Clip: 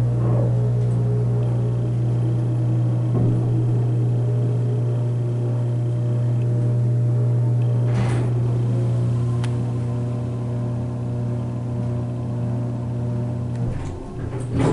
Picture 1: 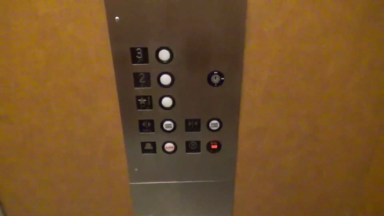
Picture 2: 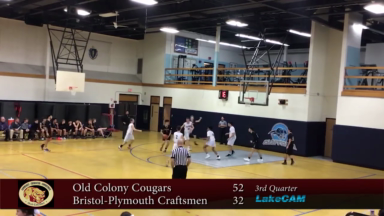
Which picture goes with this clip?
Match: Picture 1